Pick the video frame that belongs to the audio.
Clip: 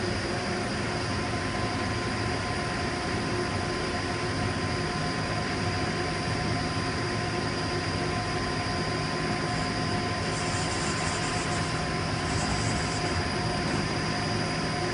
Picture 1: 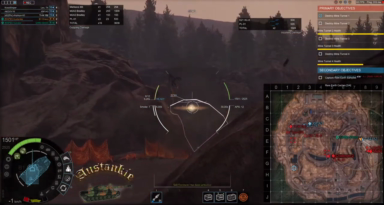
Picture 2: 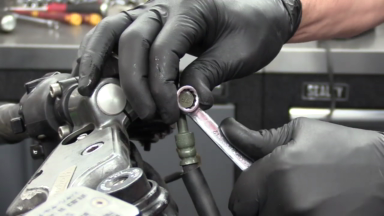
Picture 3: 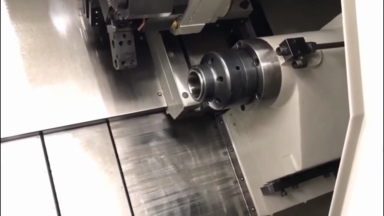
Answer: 3